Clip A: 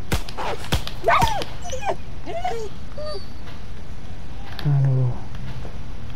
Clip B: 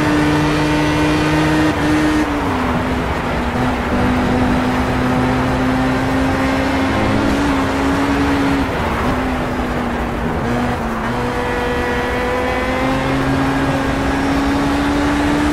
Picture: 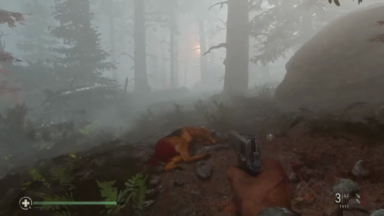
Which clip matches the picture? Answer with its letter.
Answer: A